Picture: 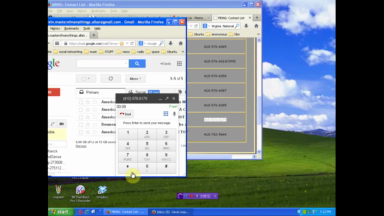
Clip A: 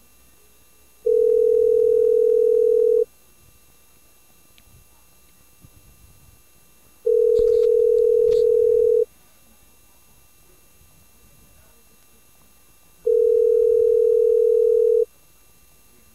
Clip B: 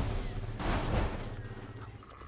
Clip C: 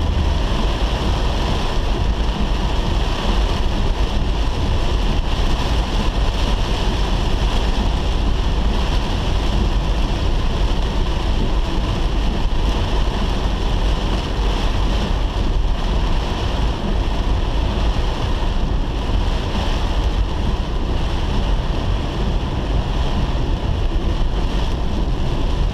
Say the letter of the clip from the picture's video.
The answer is A